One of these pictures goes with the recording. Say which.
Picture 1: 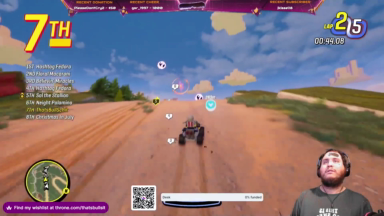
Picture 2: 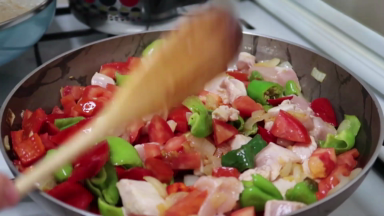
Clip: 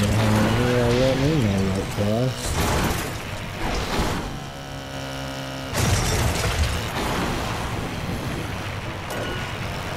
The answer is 1